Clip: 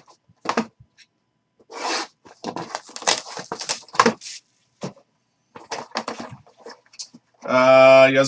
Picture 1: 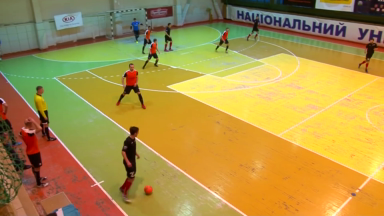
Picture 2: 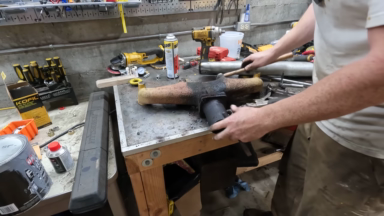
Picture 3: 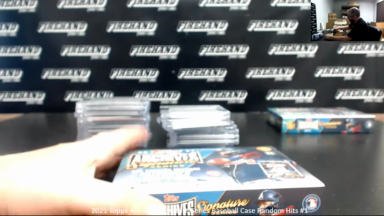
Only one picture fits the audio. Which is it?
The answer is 3